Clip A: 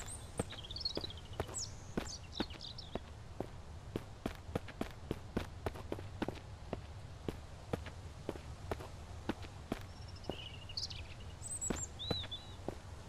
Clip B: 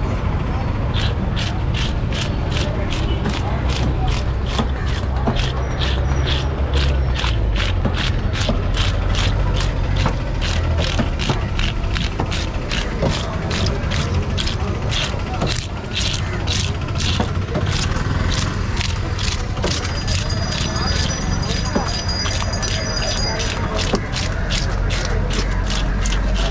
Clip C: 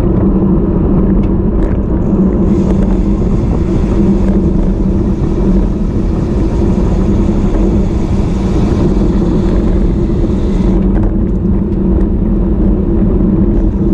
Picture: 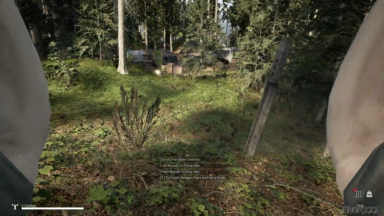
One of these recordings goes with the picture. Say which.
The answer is A